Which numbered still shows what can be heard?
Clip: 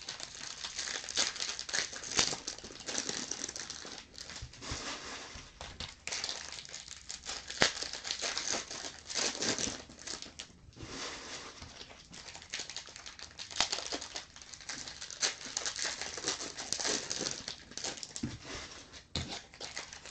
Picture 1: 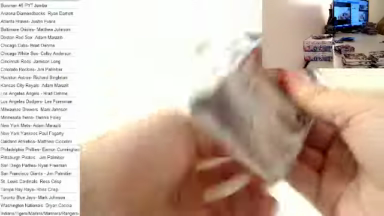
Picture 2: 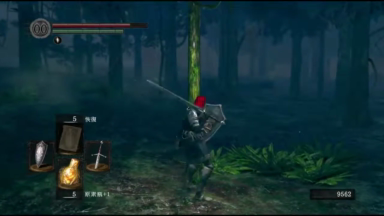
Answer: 1